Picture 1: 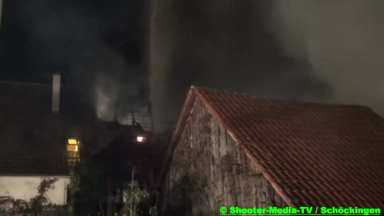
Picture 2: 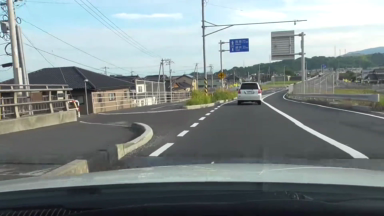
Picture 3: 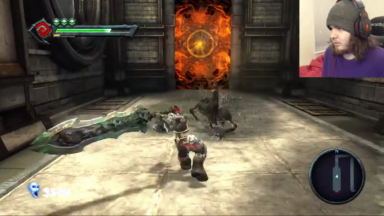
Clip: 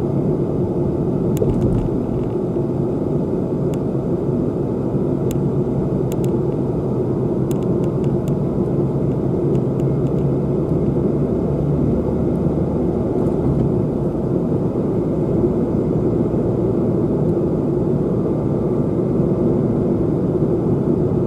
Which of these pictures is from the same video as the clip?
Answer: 2